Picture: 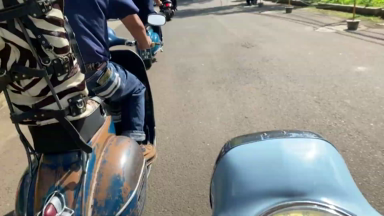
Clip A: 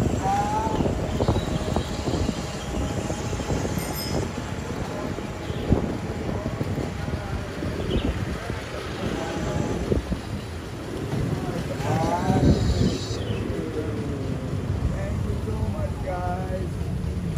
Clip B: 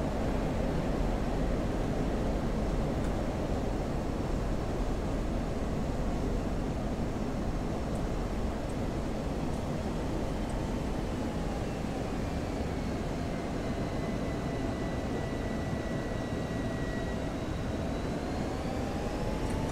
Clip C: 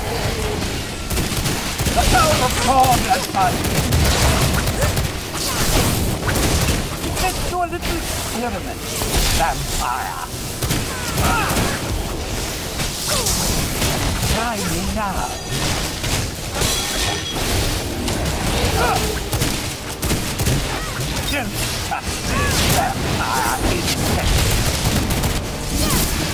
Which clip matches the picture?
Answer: A